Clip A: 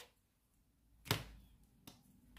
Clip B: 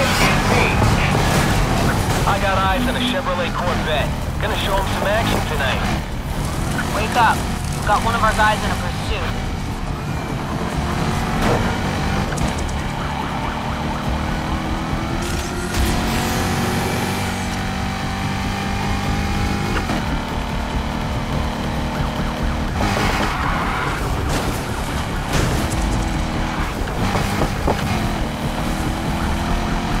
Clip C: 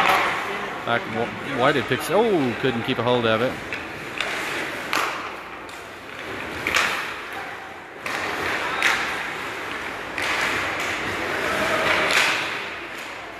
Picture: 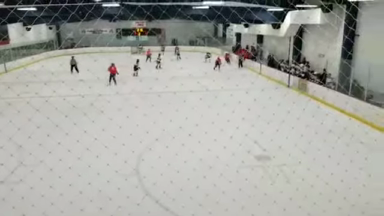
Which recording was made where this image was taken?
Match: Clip C